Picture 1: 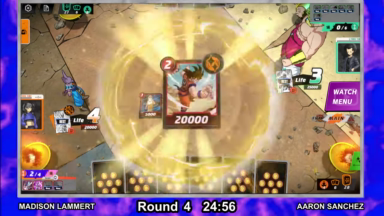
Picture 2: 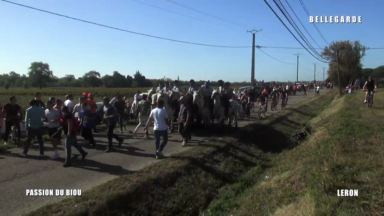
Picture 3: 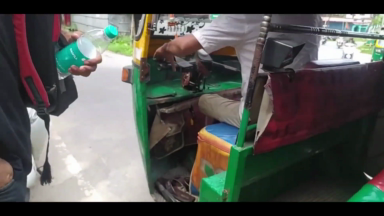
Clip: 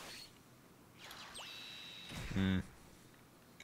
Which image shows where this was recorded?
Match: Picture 1